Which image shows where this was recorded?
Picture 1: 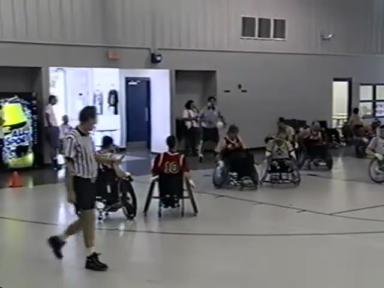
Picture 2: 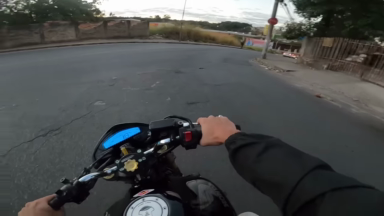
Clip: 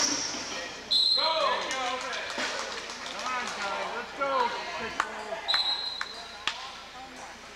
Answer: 1